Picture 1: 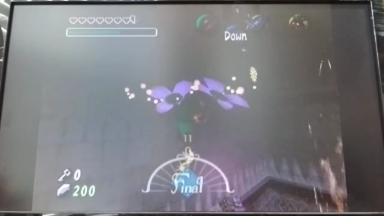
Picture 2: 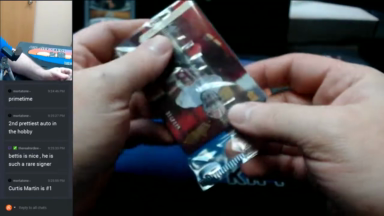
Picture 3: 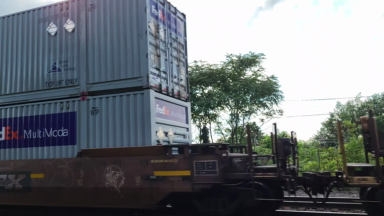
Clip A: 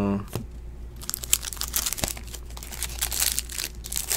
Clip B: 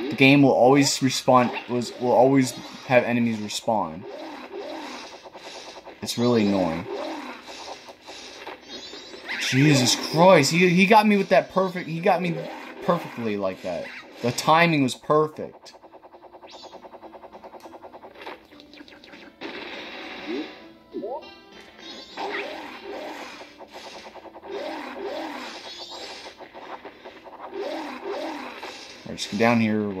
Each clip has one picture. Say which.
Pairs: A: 2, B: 1